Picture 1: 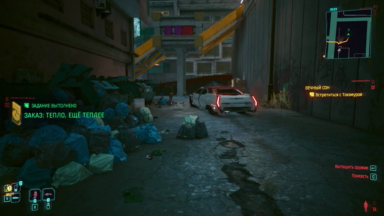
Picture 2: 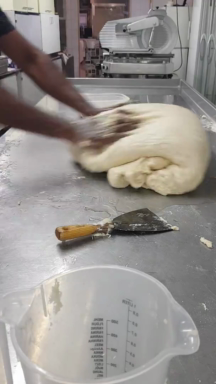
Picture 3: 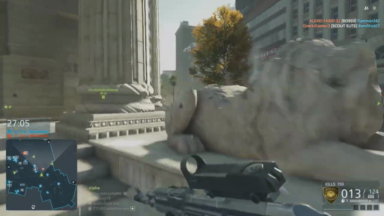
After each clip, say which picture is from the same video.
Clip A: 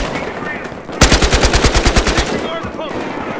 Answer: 3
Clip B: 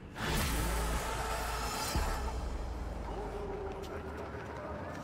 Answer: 1